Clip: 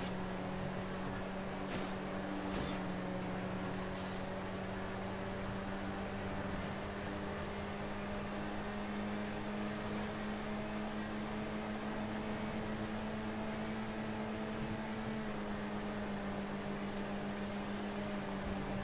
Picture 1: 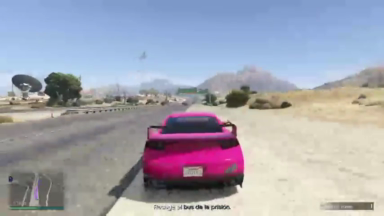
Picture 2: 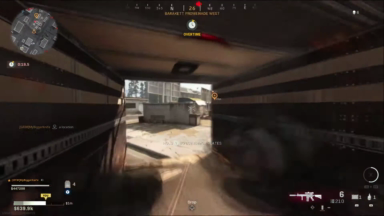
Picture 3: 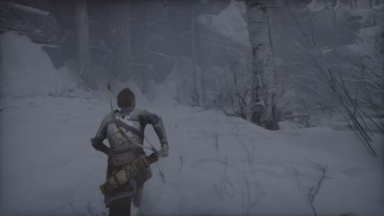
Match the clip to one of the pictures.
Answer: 1